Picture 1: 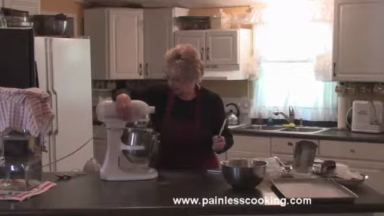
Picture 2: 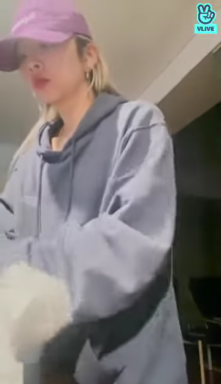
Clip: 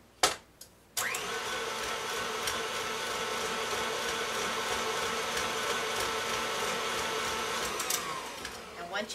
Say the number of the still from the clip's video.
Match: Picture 1